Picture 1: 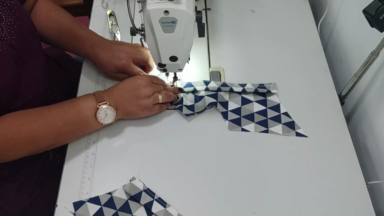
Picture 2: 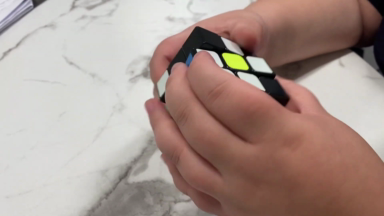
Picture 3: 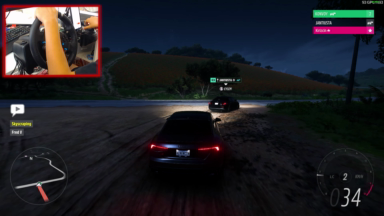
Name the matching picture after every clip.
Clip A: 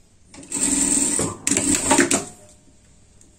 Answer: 1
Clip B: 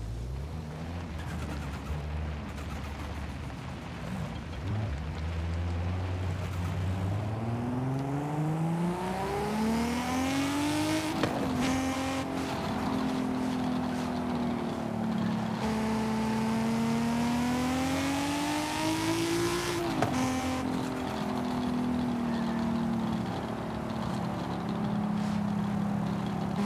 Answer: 3